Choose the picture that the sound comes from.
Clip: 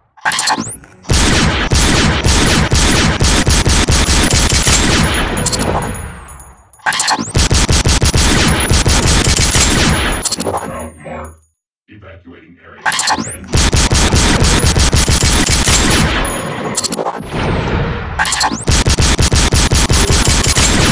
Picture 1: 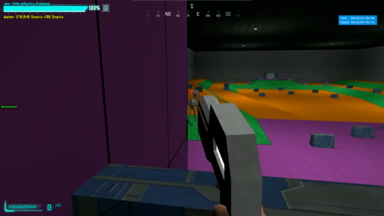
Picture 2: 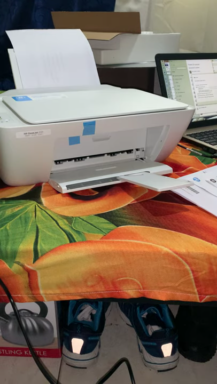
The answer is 1